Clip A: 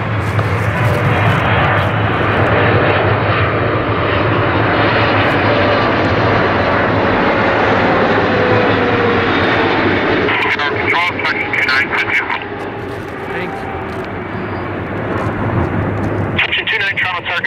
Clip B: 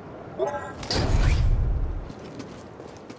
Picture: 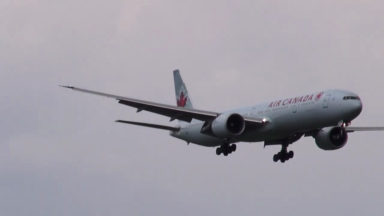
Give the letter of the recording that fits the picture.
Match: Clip A